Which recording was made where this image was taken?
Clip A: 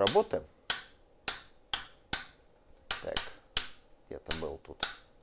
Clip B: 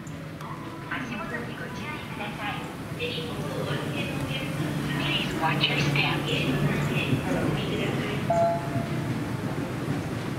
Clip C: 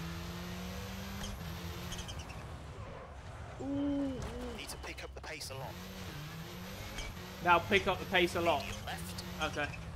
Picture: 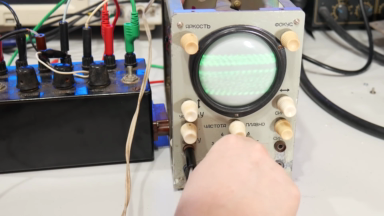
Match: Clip A